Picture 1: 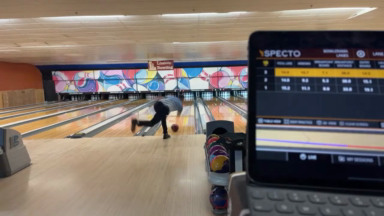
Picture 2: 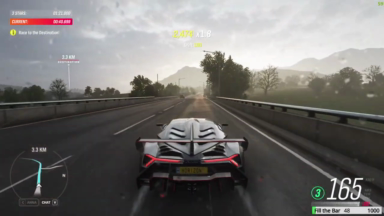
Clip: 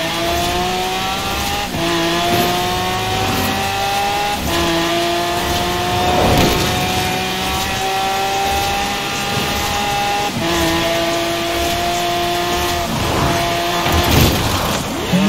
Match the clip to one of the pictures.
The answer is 2